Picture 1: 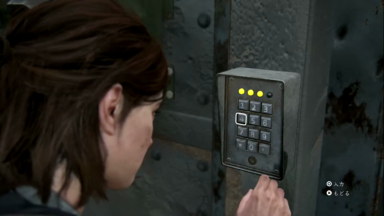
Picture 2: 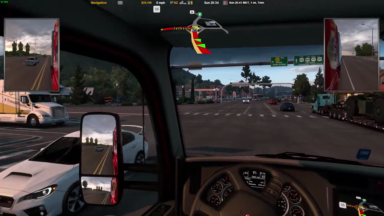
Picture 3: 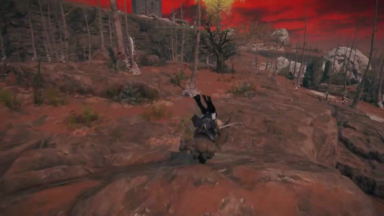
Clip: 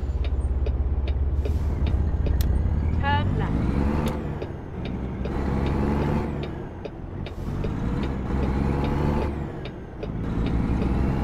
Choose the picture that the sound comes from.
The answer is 2